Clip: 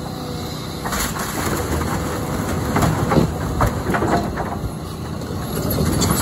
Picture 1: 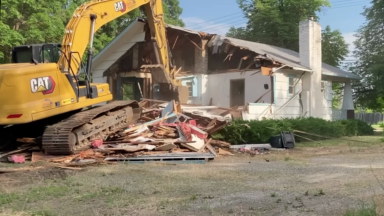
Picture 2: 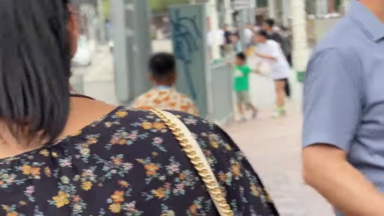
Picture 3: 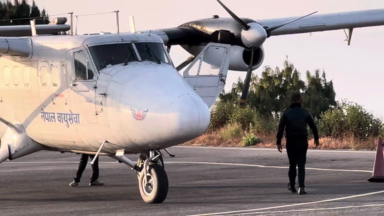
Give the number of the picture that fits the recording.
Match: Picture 1